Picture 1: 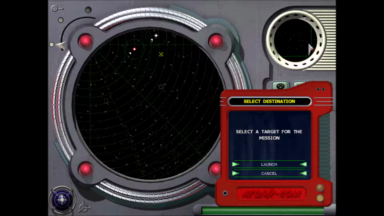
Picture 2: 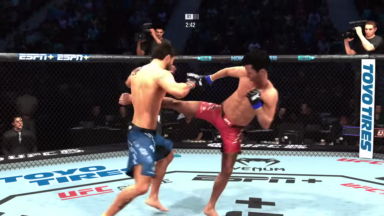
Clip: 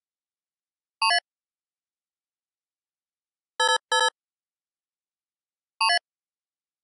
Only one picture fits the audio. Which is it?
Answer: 1